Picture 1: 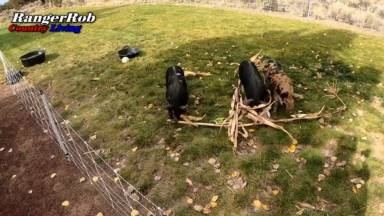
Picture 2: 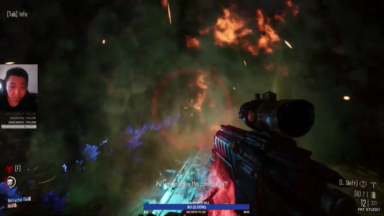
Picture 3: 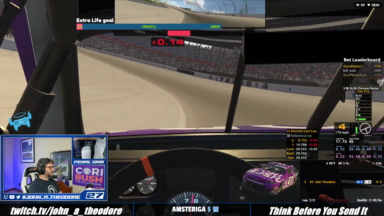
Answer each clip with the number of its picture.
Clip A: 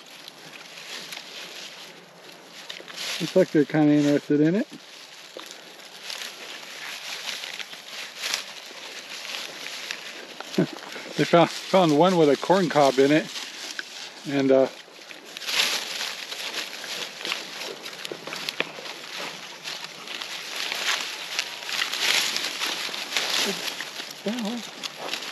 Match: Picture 1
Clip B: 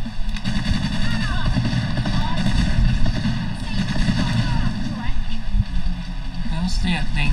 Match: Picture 2